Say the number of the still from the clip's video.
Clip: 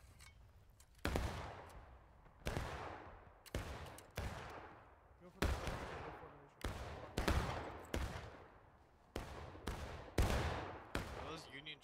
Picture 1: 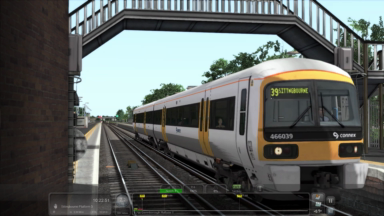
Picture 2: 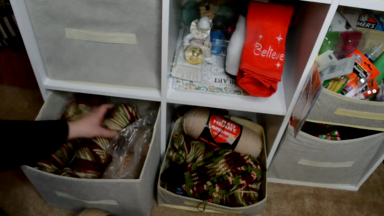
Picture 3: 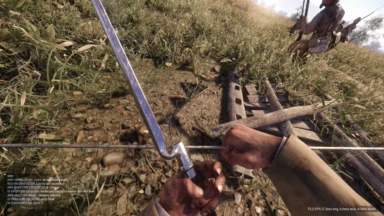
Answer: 3